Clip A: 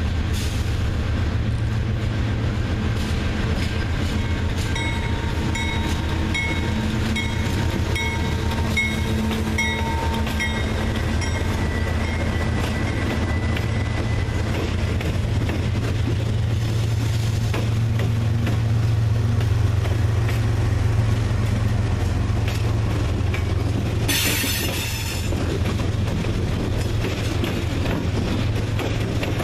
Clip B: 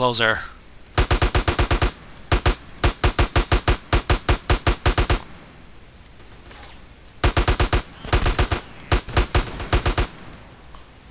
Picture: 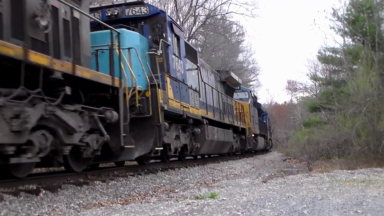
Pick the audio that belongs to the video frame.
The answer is A